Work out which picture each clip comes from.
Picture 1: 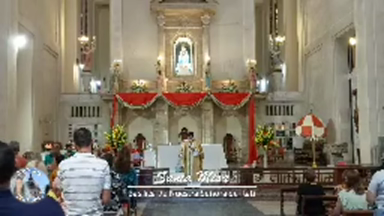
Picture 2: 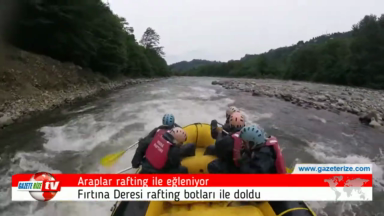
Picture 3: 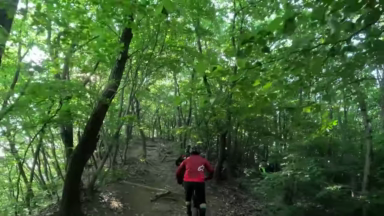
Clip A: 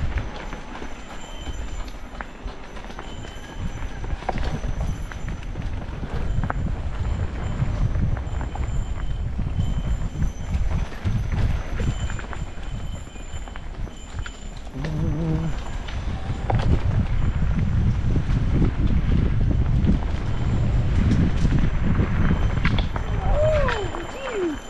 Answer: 3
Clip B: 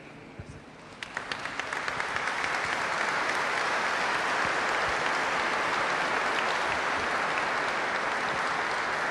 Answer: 1